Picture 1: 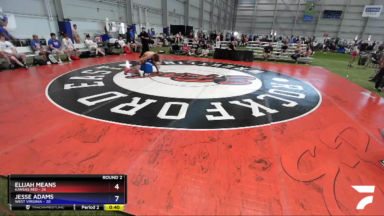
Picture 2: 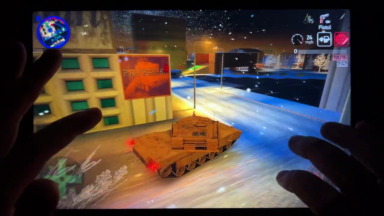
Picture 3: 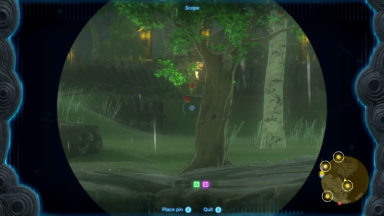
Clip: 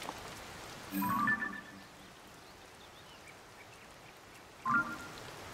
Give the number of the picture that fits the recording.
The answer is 3